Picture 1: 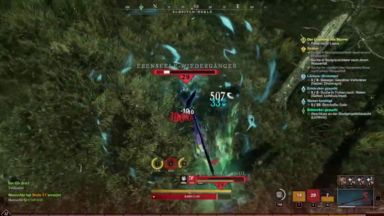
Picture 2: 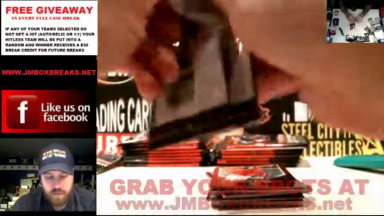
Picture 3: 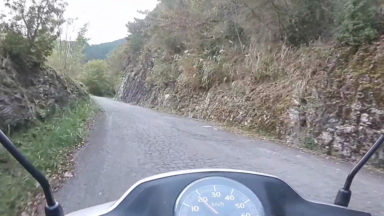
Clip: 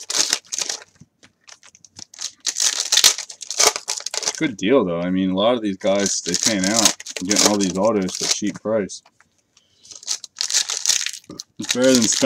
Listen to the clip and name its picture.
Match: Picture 2